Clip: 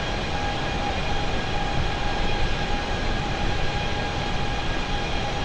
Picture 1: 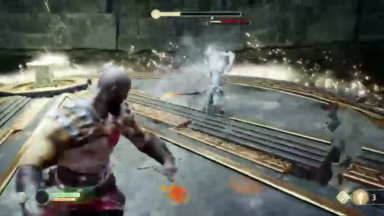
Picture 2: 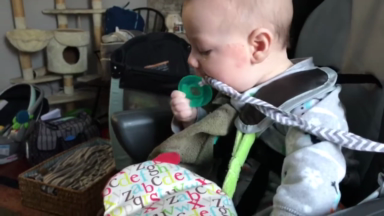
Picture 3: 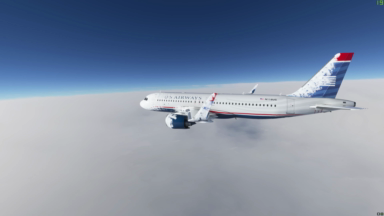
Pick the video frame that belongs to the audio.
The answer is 3